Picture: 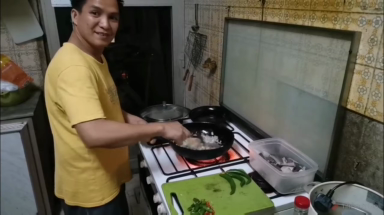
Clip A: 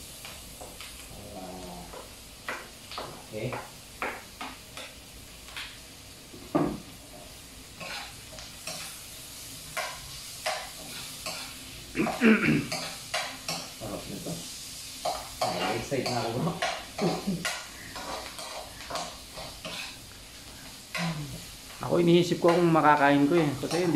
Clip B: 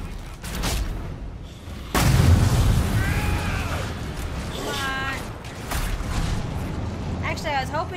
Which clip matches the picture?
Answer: A